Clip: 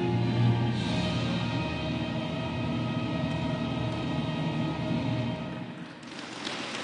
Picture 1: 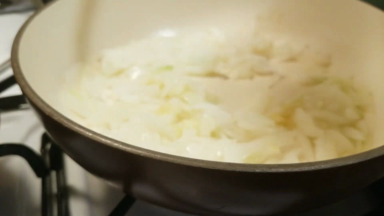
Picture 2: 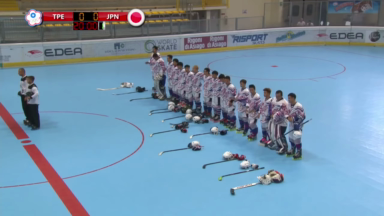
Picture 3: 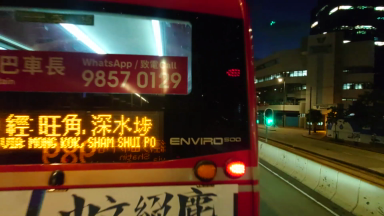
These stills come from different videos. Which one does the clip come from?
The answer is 2